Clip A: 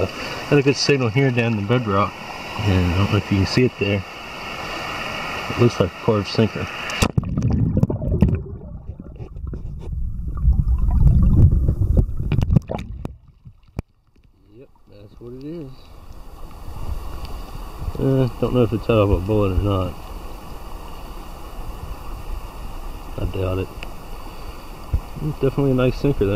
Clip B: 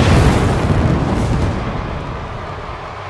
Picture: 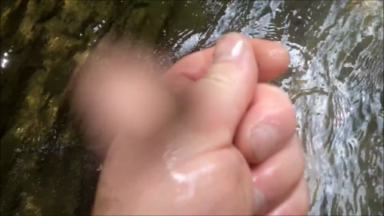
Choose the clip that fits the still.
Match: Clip A